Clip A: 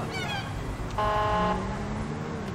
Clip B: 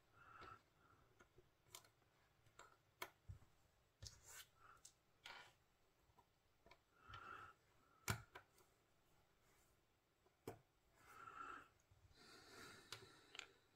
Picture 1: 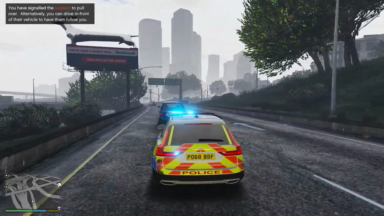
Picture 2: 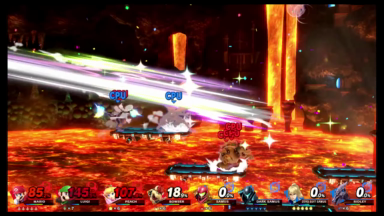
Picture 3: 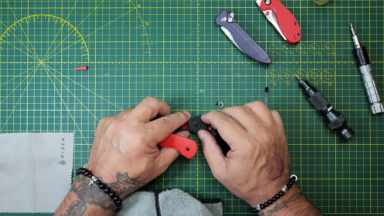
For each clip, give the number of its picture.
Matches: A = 1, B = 3